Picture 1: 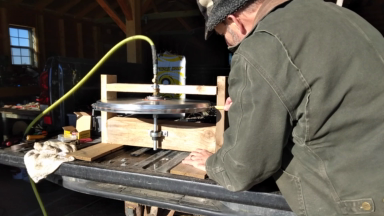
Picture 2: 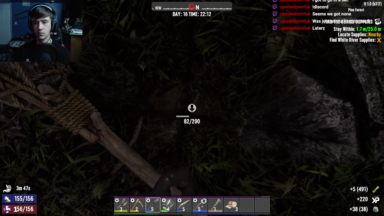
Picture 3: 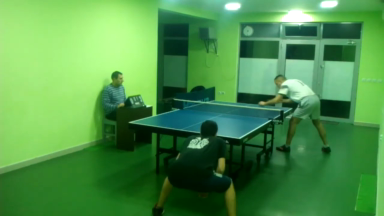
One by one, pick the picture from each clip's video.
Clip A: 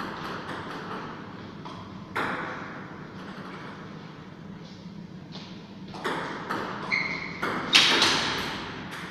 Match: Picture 3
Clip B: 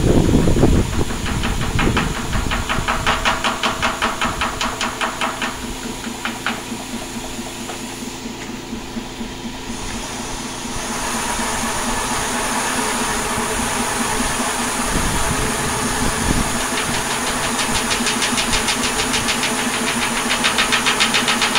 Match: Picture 1